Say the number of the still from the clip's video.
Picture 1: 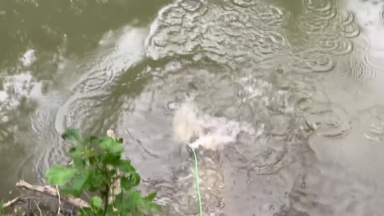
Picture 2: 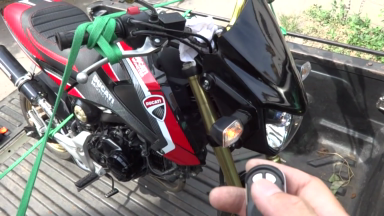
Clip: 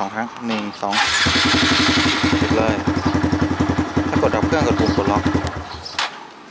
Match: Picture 2